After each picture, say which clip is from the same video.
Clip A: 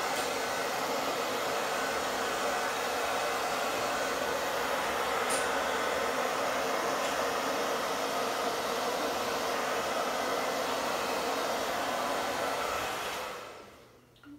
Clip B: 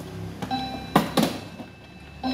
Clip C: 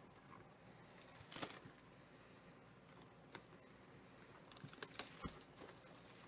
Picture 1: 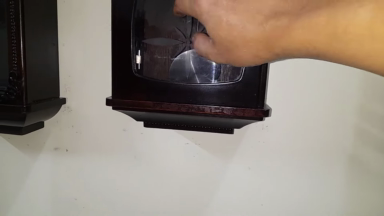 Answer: B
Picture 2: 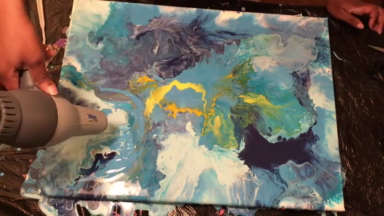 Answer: A